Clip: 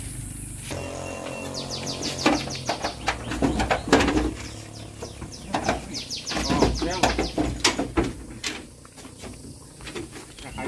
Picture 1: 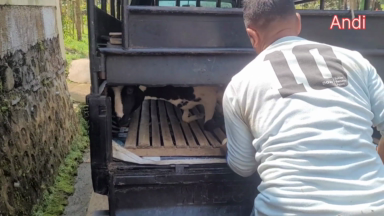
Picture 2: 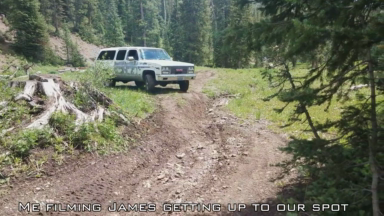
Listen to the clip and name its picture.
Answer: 1